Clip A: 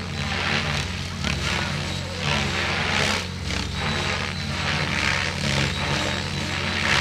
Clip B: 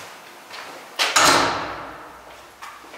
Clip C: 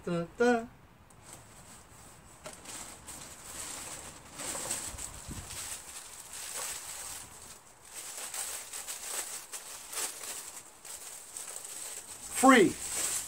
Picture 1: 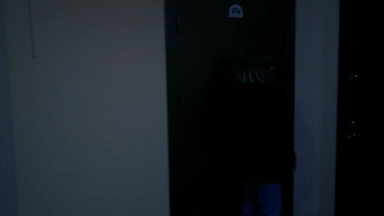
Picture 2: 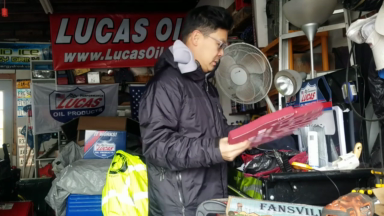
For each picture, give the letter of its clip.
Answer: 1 B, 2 C